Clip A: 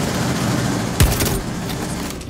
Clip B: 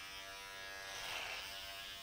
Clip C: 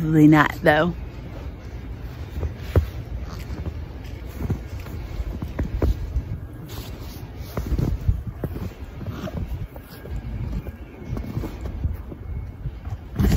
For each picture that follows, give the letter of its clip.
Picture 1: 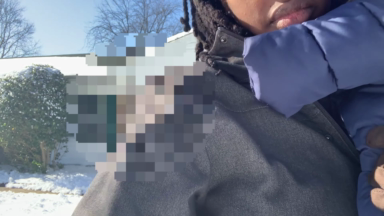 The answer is C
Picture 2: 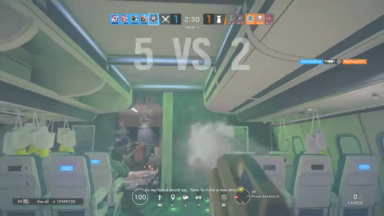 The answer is A